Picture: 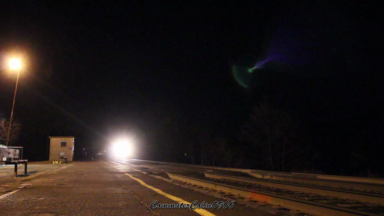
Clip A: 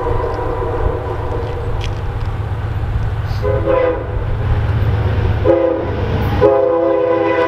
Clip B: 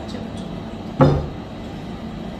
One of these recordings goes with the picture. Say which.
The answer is A